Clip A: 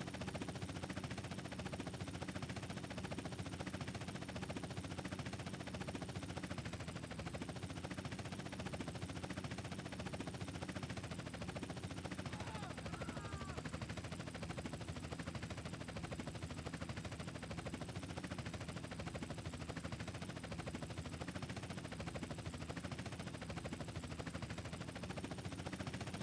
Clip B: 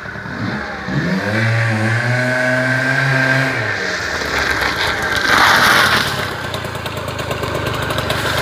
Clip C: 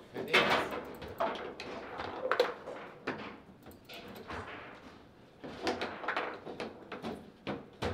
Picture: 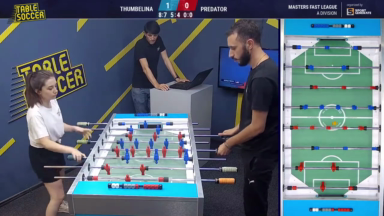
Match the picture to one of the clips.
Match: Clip C